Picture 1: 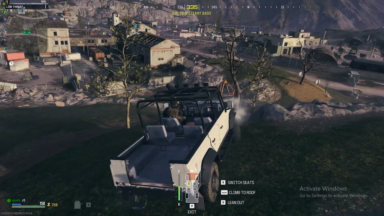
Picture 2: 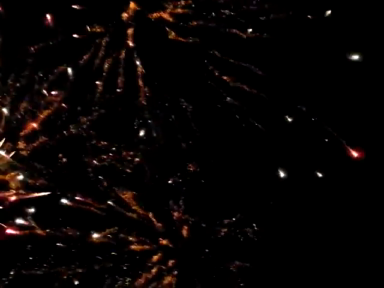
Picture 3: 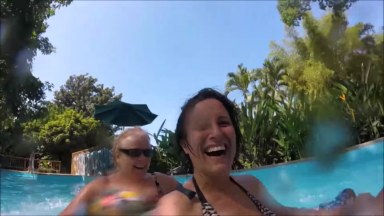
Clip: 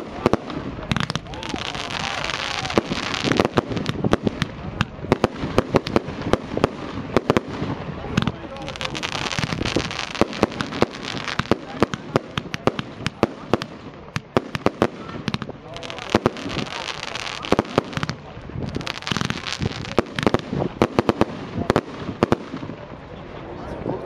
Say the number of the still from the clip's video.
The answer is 2